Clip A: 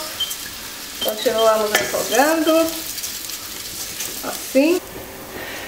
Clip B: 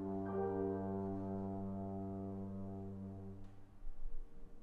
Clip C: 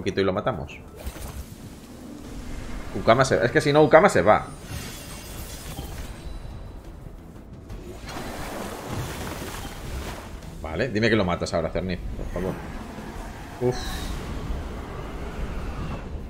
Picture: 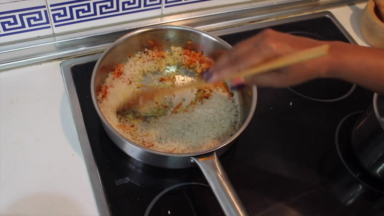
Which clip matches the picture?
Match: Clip A